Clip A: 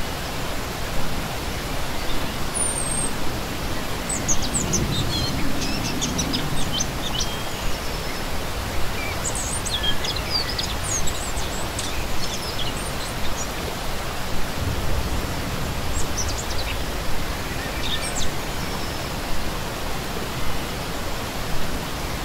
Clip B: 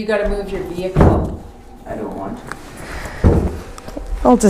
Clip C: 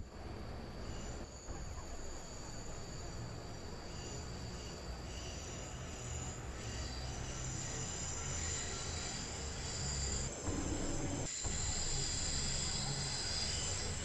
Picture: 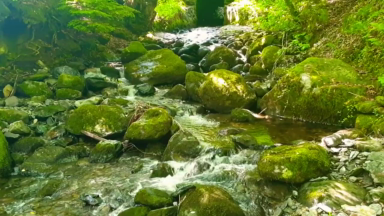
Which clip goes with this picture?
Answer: A